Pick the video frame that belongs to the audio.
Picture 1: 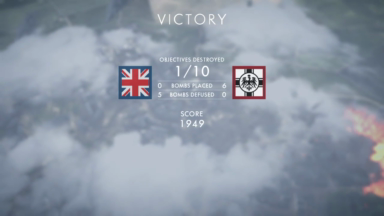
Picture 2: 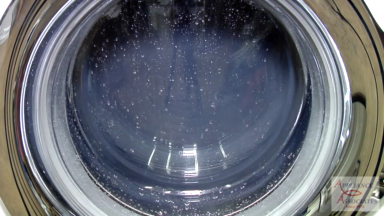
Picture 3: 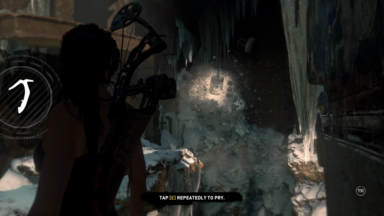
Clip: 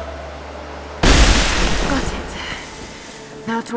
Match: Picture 3